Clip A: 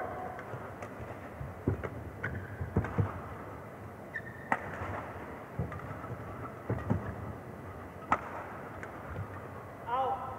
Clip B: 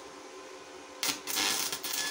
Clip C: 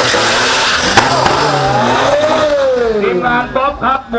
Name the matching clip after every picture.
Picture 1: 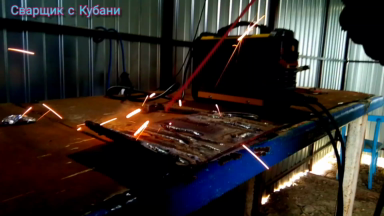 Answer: B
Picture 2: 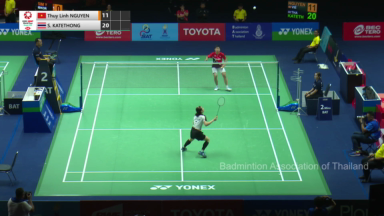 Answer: A